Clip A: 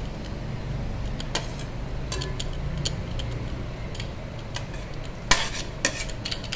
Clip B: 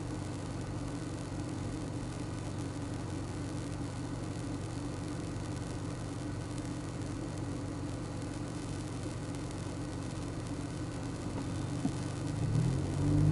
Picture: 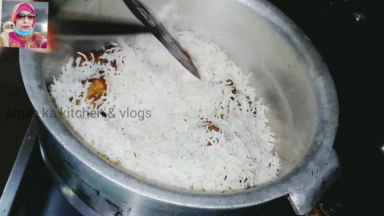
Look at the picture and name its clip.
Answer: A